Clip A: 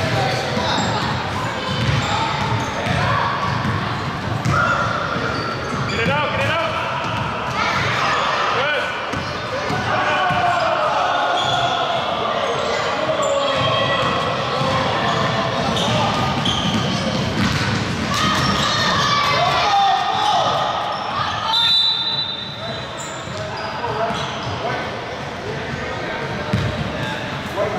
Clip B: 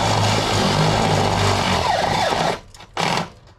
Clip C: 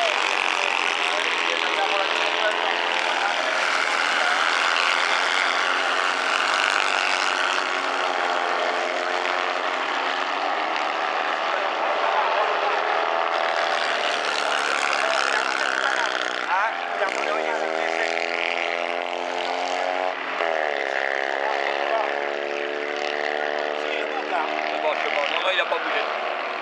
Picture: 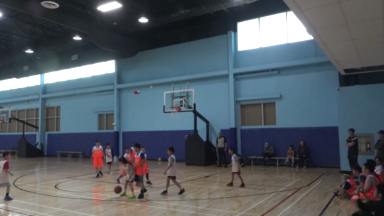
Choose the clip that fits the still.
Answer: A